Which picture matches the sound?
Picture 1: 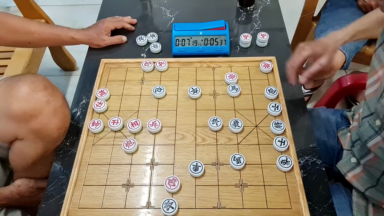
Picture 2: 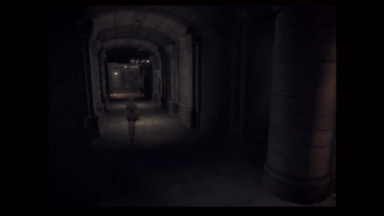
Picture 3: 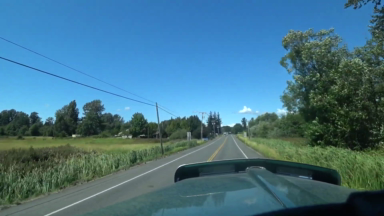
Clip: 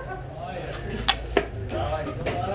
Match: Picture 1